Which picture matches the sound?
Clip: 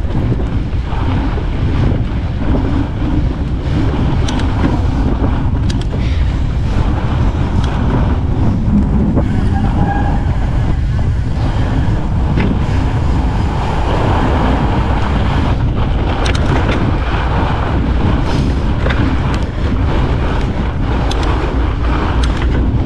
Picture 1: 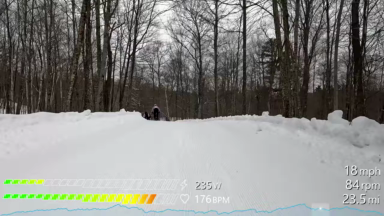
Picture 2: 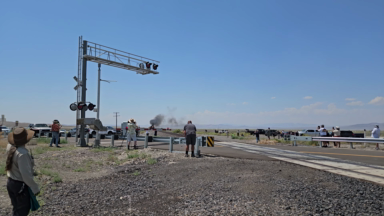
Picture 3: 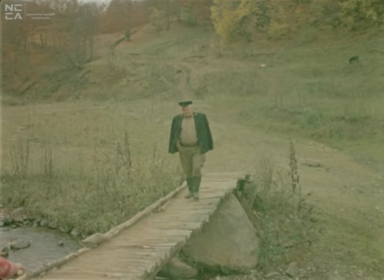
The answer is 1